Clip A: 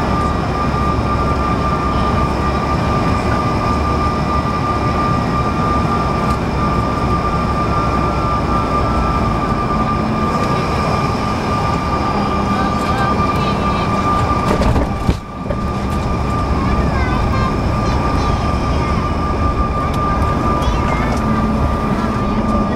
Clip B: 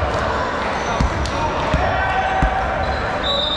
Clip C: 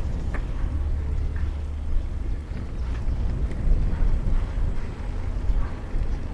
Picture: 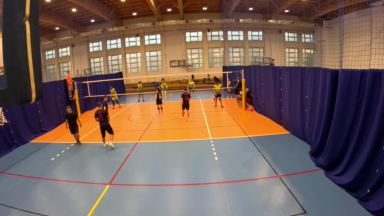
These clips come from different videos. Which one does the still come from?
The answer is B